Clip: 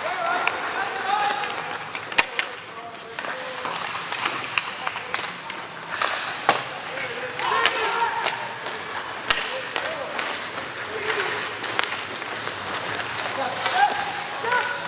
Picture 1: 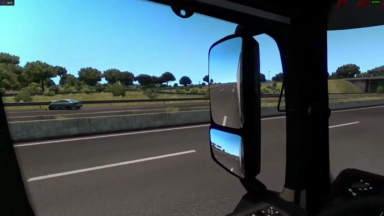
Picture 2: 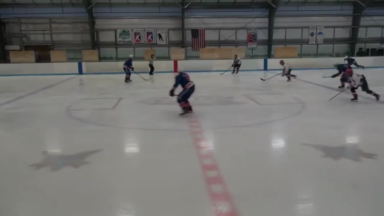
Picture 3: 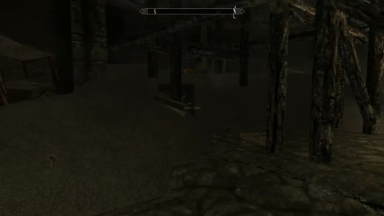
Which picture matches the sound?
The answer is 2